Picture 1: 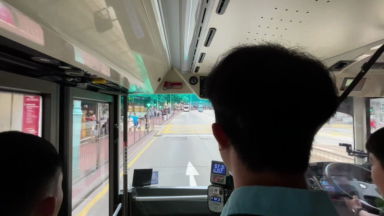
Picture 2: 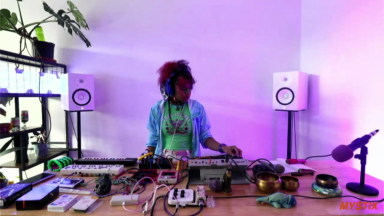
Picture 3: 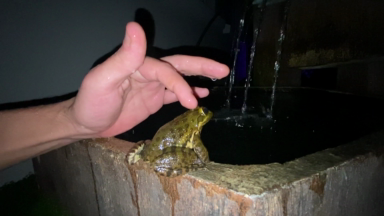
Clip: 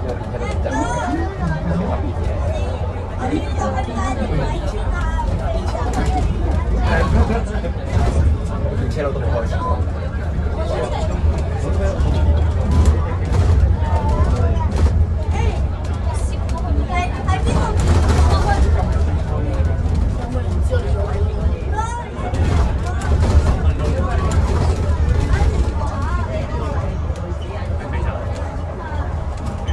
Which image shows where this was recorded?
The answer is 1